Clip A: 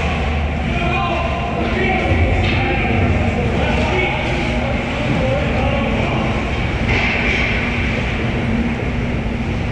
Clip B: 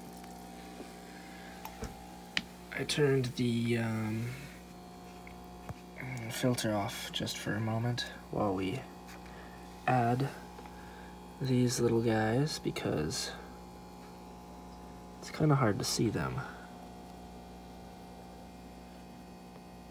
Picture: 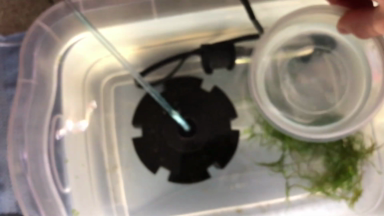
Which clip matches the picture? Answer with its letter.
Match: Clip B